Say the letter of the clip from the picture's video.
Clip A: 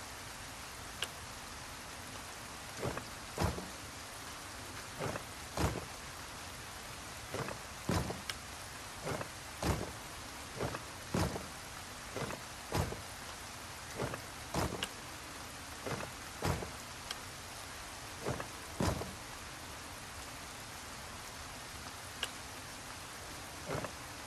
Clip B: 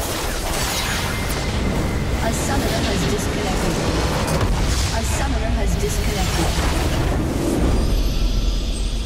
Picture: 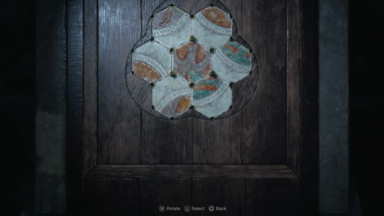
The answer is A